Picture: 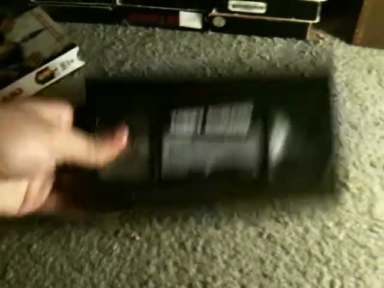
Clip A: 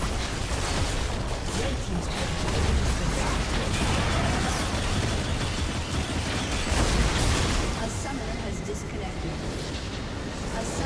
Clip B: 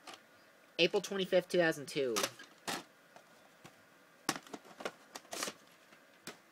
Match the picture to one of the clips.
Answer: B